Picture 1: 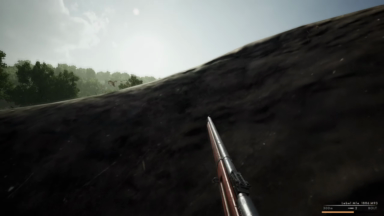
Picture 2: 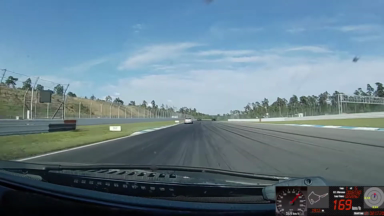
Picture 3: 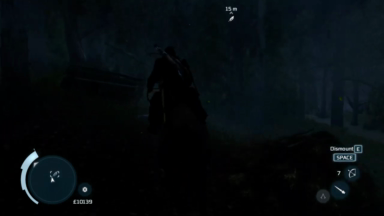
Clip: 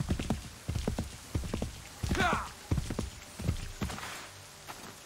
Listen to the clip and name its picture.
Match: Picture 3